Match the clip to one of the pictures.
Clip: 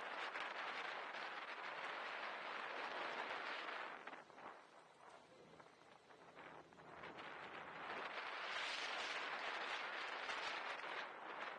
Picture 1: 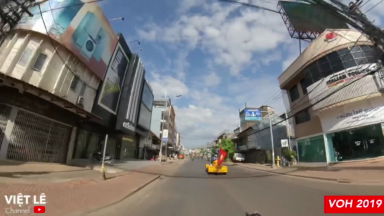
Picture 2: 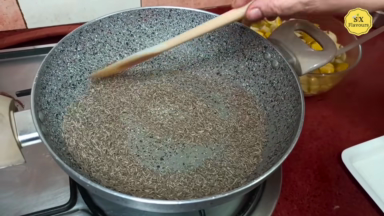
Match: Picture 1